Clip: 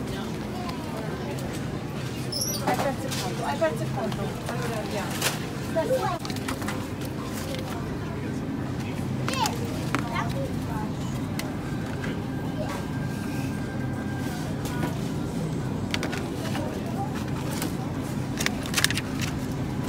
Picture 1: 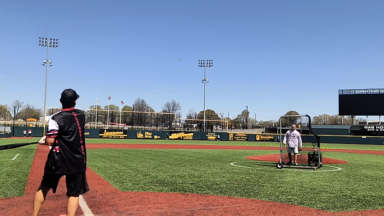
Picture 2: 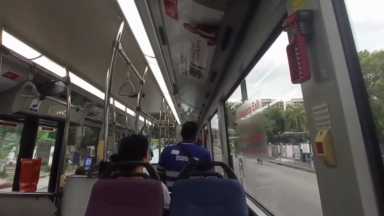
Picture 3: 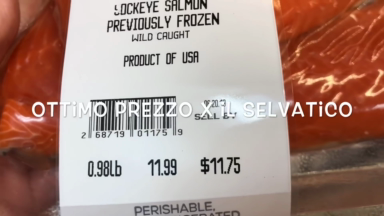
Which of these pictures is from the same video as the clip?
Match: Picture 3